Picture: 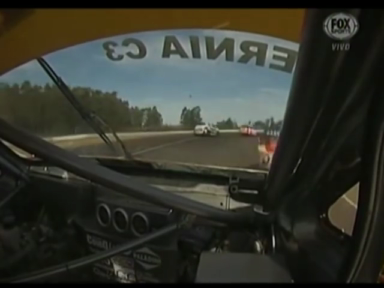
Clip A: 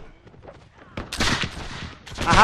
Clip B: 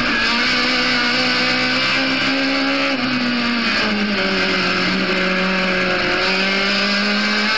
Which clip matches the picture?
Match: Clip B